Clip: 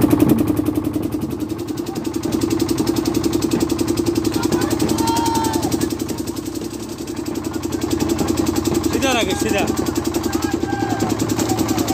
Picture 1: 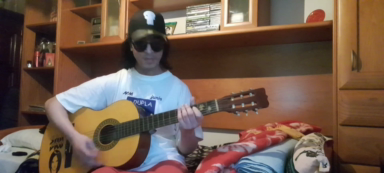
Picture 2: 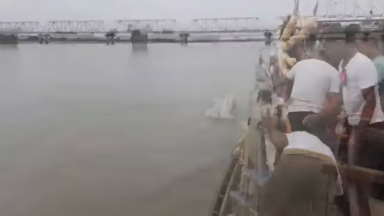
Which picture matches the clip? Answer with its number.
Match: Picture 2